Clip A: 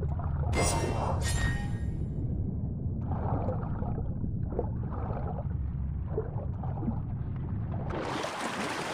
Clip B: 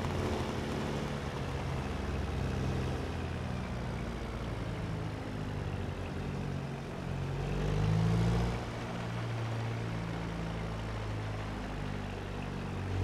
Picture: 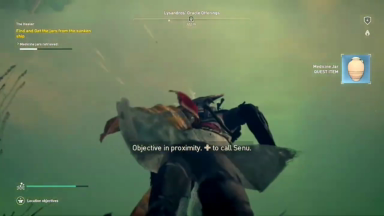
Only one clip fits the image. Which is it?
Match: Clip A